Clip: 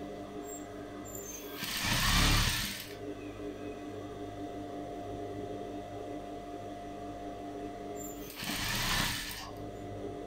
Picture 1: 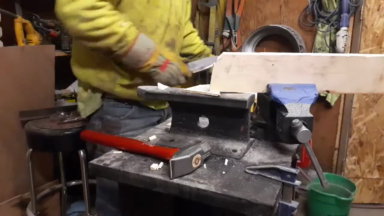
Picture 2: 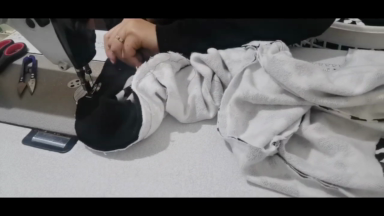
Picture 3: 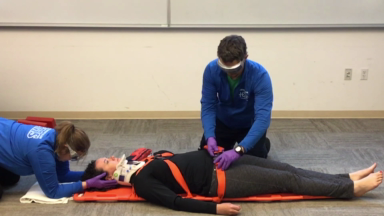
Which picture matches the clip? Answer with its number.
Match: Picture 2